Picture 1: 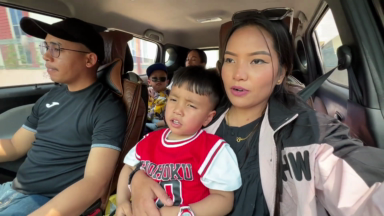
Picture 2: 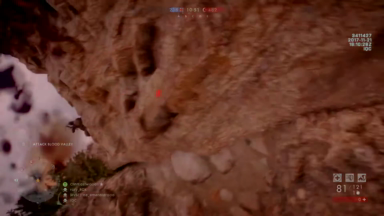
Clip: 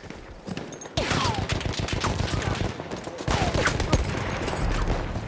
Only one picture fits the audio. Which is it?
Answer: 2